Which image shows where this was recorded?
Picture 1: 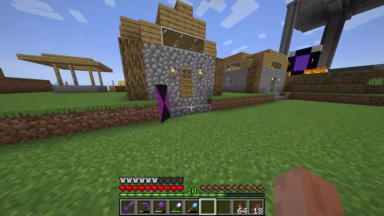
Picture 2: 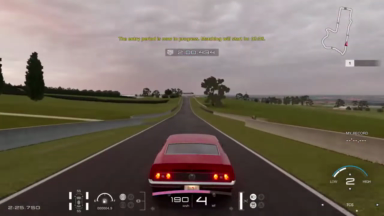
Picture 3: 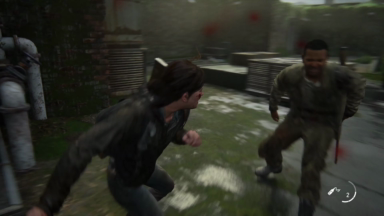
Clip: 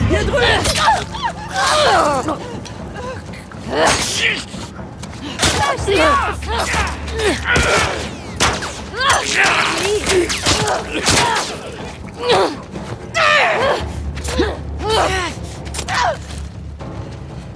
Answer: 3